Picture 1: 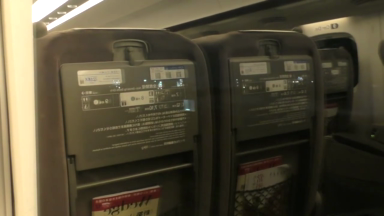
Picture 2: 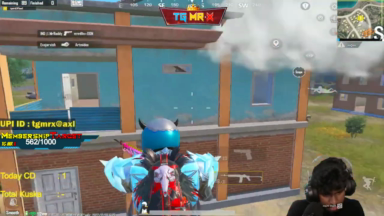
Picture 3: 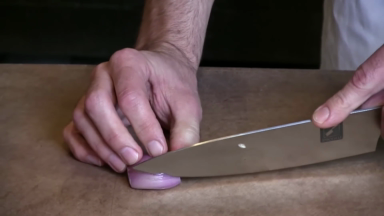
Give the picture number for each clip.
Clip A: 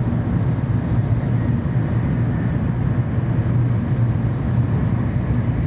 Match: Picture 1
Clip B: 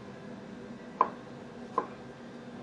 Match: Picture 3